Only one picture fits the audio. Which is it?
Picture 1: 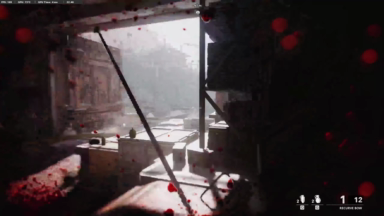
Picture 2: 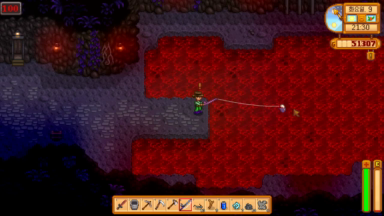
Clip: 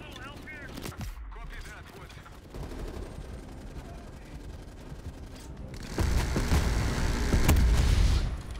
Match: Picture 1